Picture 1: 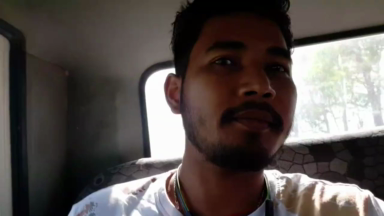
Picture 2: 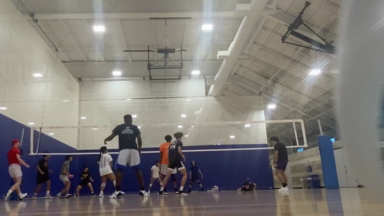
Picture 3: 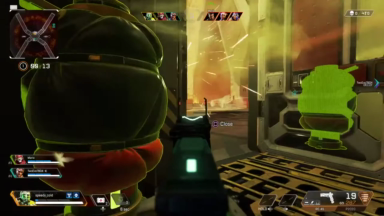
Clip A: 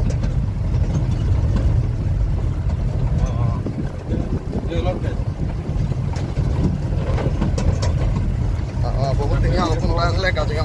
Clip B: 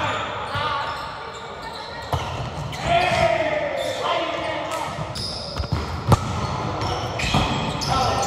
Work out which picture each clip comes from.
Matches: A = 1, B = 2